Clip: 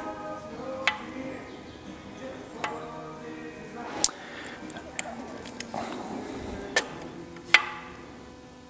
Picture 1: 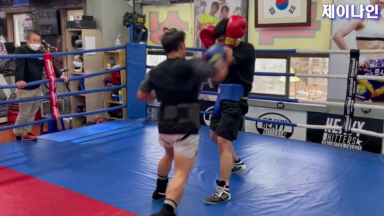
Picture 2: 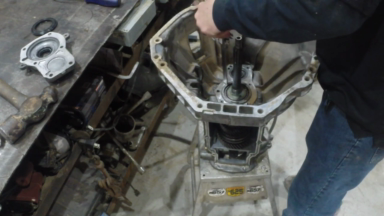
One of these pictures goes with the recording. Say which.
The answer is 2